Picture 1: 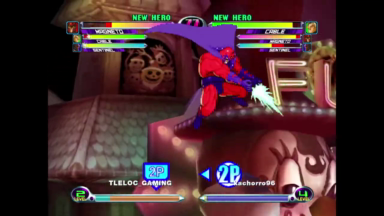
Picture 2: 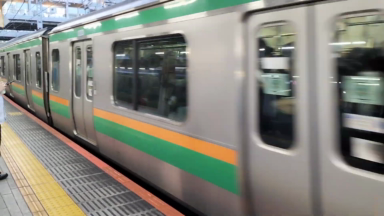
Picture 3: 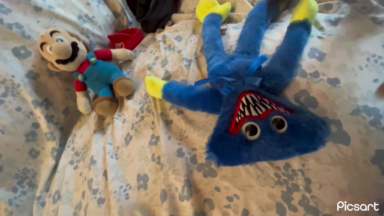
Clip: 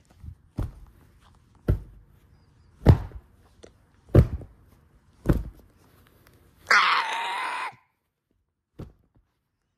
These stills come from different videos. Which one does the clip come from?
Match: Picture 3